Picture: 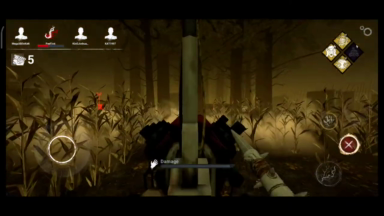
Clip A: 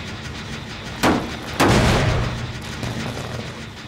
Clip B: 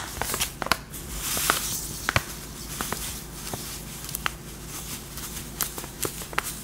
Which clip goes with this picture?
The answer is A